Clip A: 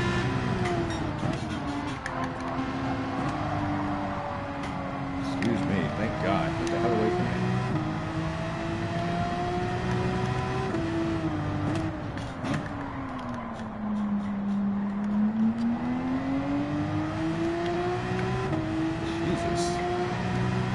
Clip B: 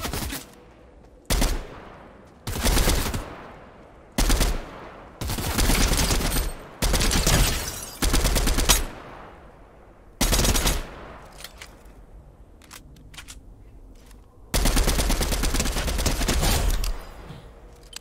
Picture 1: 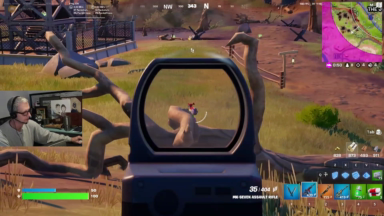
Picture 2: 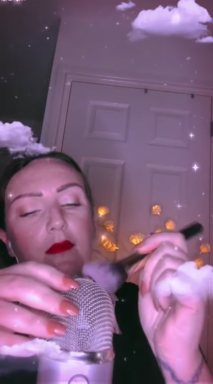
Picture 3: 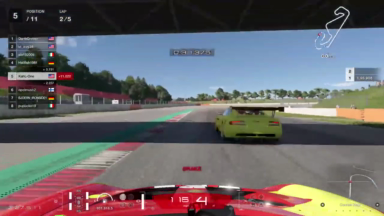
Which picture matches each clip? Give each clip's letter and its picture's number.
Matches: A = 3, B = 1